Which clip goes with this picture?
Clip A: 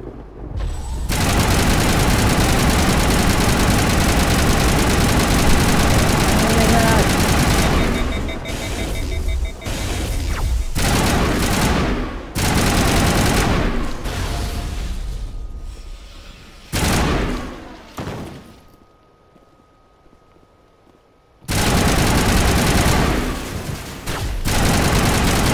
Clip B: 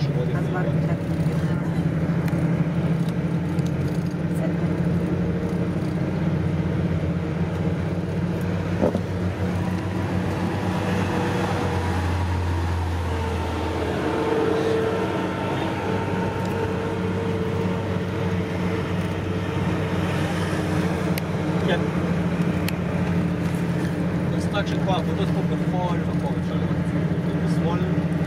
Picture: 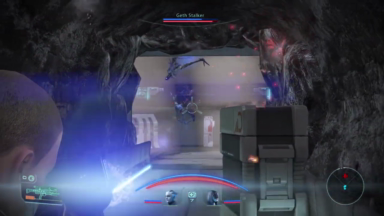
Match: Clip A